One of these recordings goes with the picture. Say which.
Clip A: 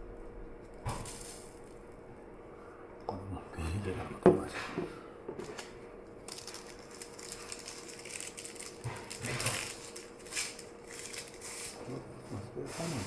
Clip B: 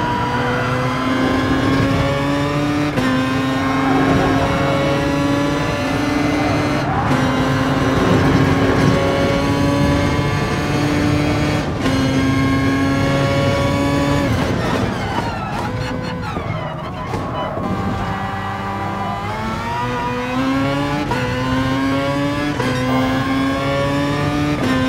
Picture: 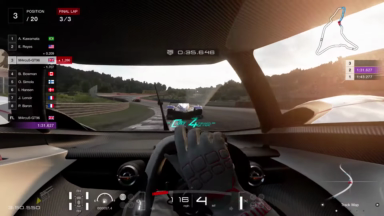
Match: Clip B